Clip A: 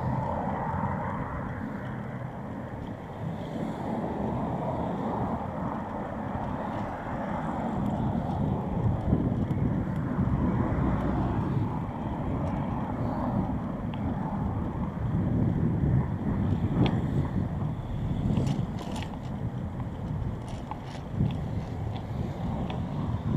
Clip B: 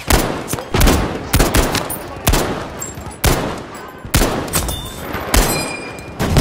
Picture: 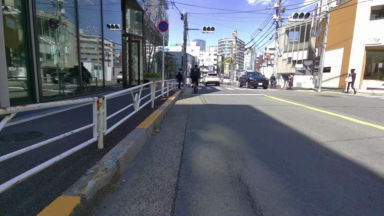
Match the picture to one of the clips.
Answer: A